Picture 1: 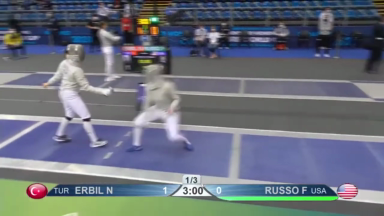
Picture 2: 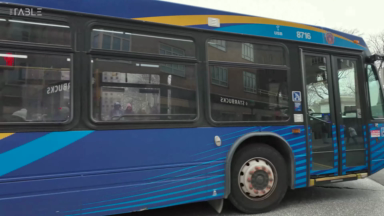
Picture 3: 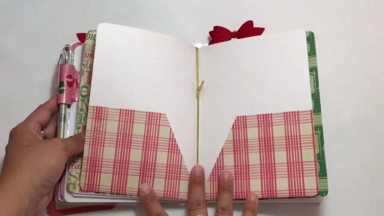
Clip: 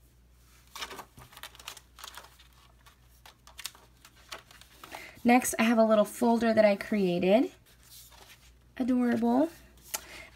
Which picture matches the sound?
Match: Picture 3